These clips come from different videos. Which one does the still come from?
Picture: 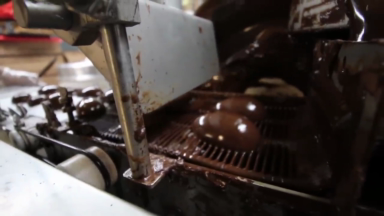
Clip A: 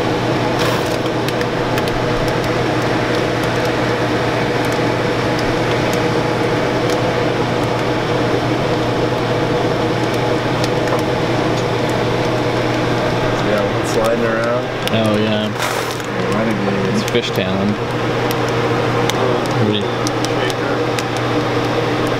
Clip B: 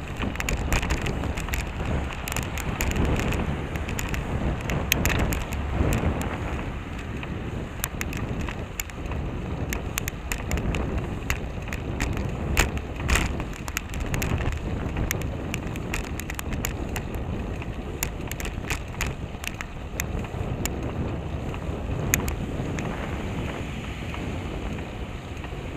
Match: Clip A